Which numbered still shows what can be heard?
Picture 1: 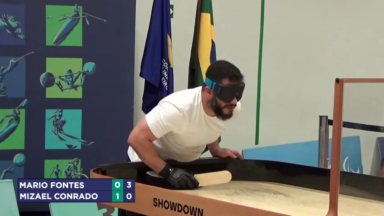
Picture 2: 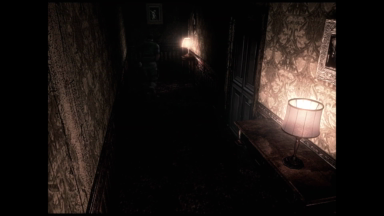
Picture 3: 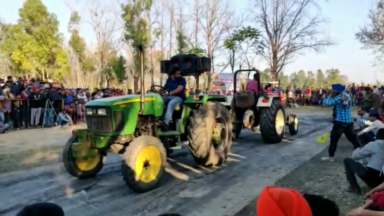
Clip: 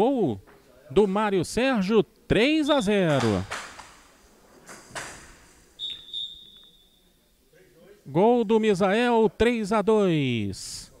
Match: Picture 1